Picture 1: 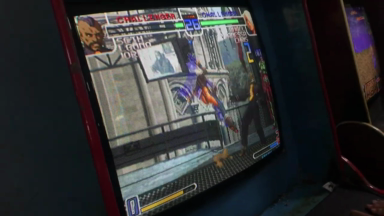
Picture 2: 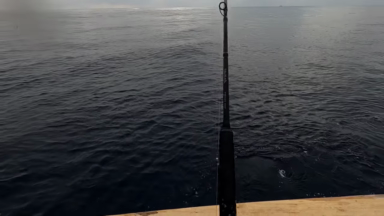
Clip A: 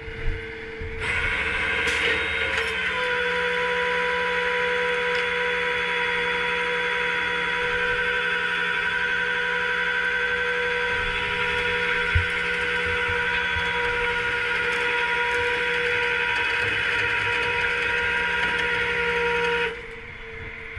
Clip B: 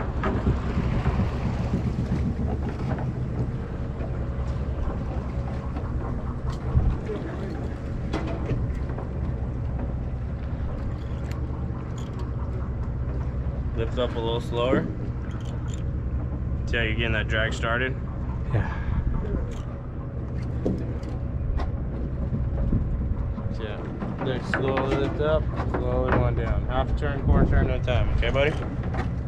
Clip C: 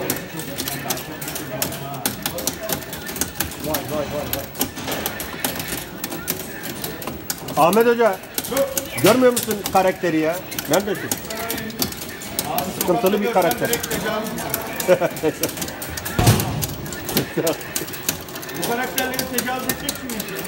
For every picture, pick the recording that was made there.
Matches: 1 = C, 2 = B